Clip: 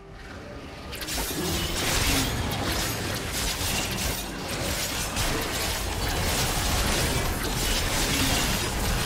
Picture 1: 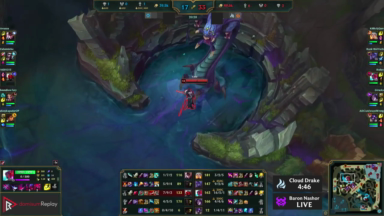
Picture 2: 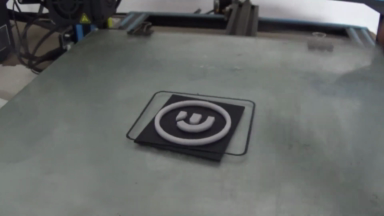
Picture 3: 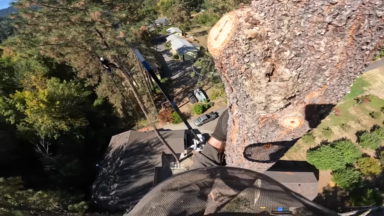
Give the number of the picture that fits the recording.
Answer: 1